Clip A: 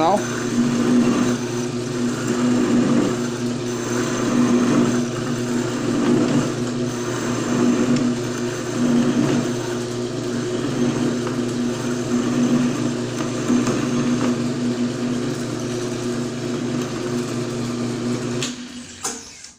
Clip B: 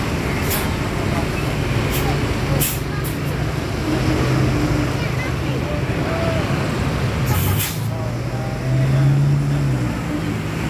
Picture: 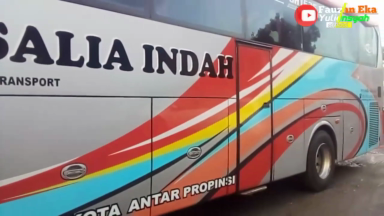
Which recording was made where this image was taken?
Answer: B